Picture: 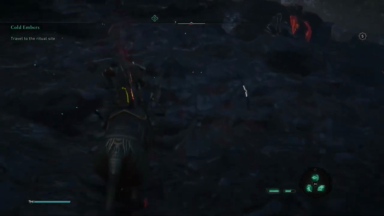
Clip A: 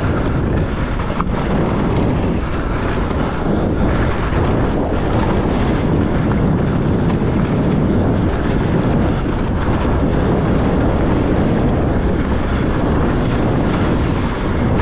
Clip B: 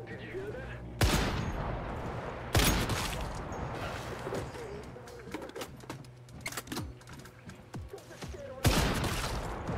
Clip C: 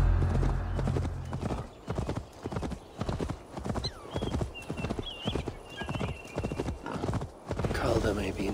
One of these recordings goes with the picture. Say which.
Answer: C